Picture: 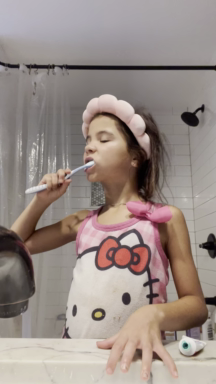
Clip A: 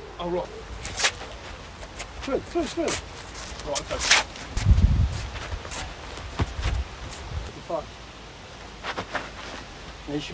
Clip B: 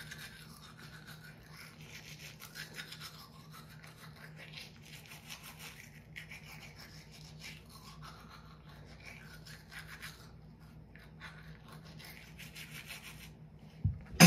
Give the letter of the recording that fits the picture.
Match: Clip B